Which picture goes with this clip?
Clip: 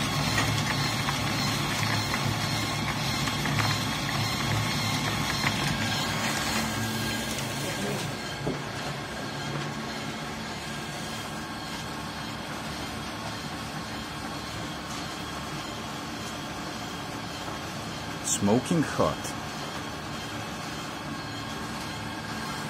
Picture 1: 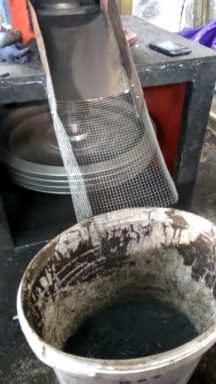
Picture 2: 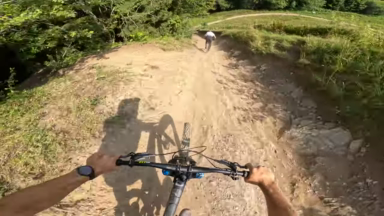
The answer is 1